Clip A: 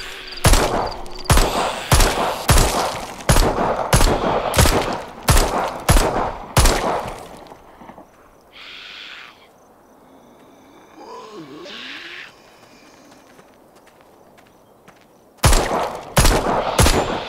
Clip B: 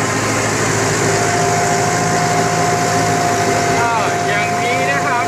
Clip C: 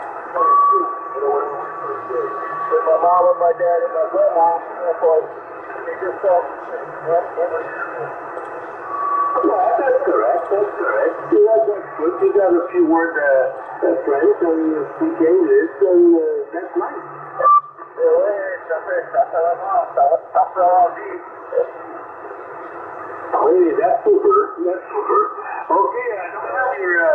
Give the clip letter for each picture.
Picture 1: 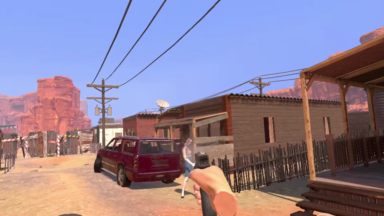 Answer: A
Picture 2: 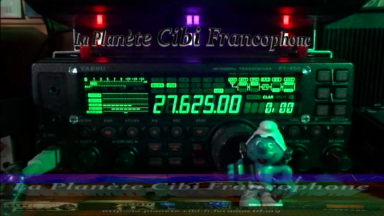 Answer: C